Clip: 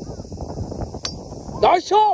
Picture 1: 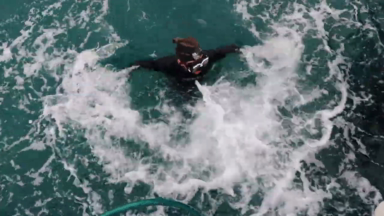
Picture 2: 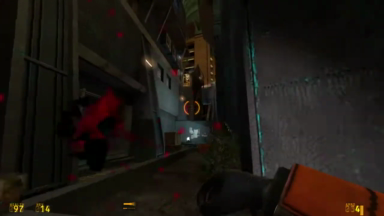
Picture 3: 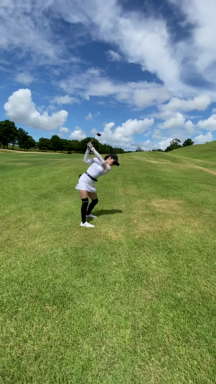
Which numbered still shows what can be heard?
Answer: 3